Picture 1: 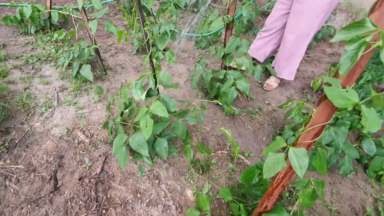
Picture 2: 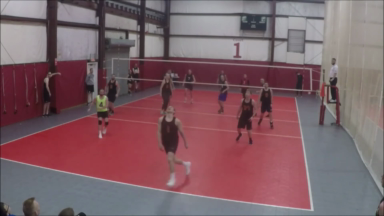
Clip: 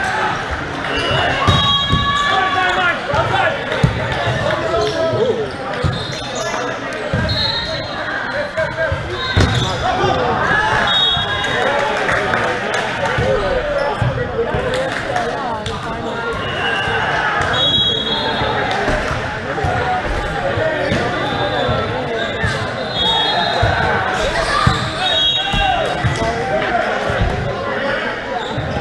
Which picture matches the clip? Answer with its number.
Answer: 2